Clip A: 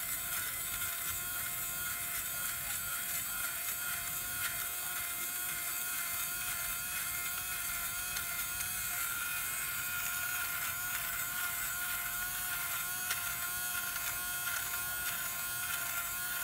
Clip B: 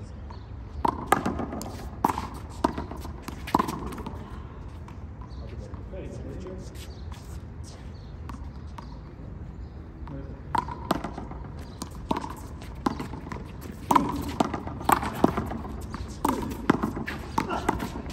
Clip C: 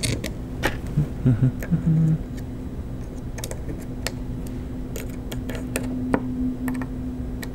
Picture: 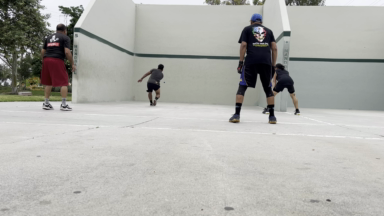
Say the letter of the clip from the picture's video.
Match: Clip B